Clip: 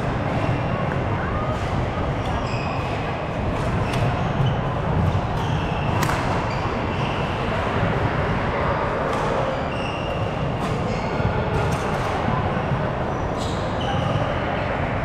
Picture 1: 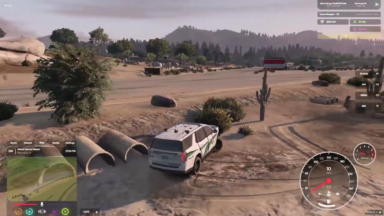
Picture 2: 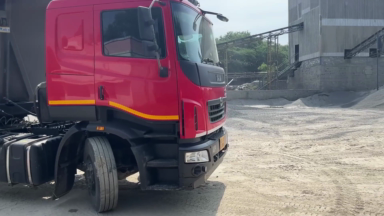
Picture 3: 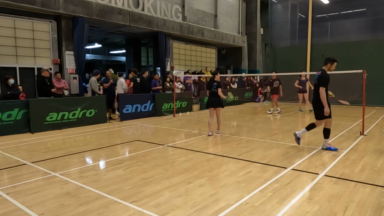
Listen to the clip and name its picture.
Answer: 3